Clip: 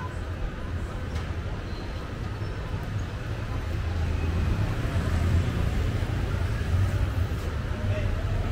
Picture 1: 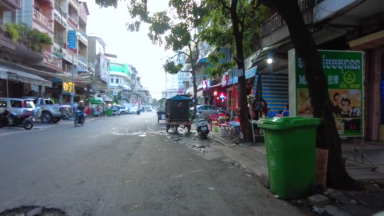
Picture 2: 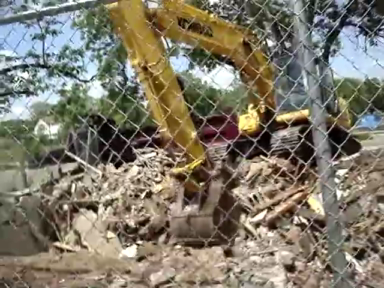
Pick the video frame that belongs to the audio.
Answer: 1